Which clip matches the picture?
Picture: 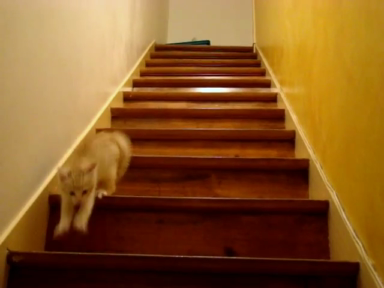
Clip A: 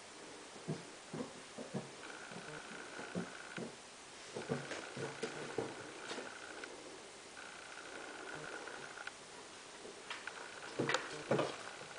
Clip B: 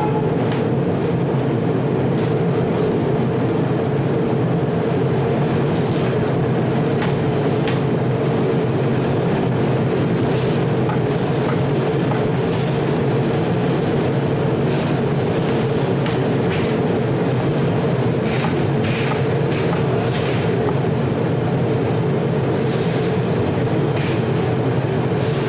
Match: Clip A